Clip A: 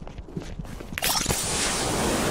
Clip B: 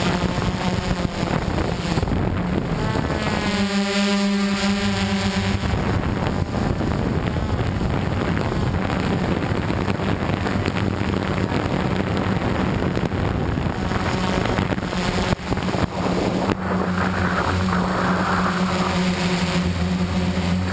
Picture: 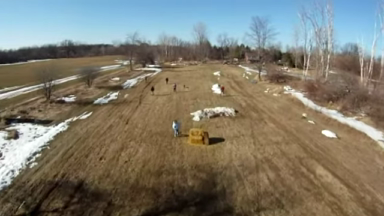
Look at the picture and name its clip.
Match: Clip B